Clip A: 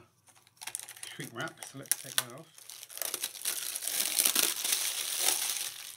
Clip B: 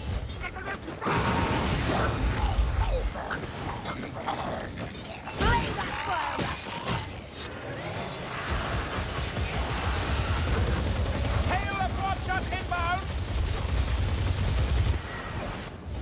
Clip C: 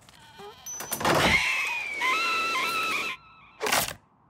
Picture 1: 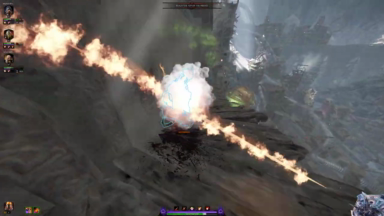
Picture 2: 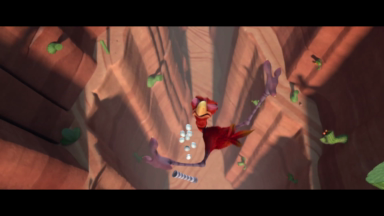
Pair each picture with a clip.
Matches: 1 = B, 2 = C